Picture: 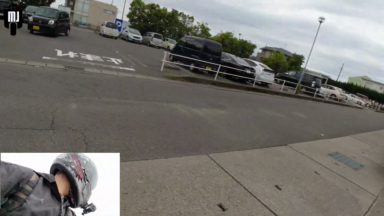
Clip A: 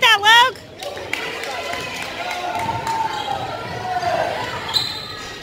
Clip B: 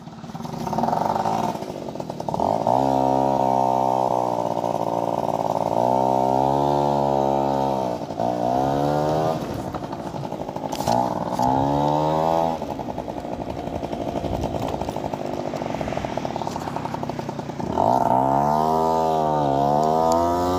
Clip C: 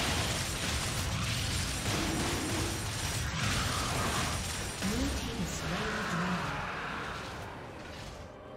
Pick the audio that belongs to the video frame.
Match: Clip B